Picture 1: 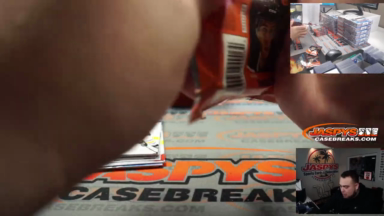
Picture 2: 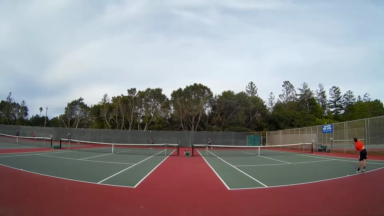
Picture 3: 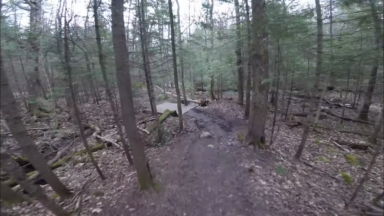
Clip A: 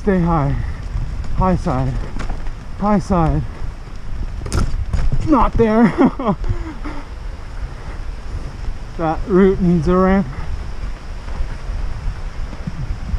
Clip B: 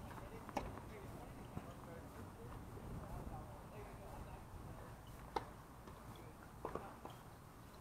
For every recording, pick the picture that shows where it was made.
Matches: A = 3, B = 2